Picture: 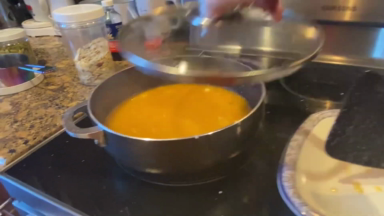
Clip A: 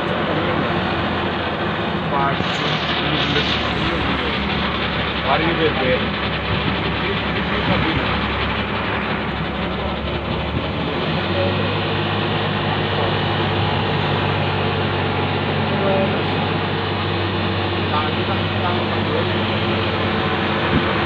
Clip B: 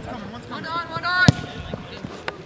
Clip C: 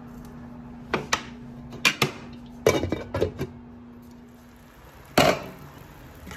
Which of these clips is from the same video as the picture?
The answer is C